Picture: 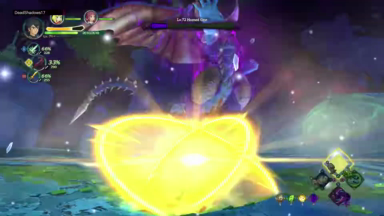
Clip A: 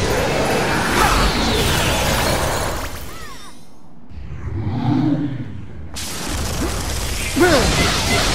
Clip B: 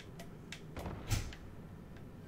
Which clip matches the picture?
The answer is A